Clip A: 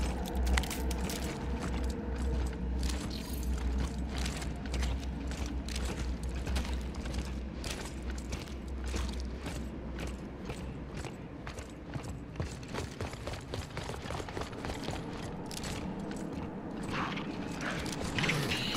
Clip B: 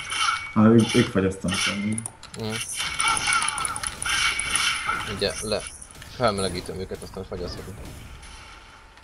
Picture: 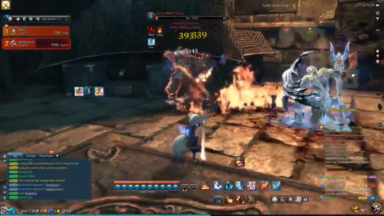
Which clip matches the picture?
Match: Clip B